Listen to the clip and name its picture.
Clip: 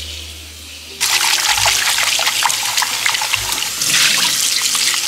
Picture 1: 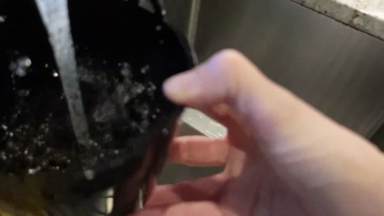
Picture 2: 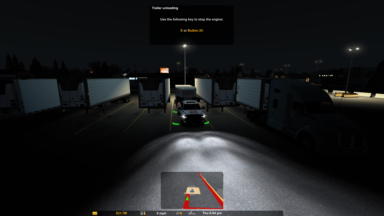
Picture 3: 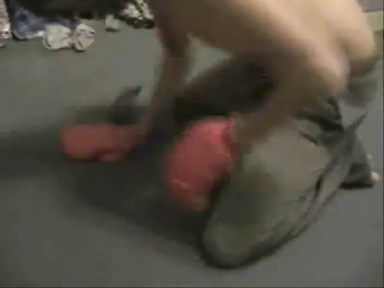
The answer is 1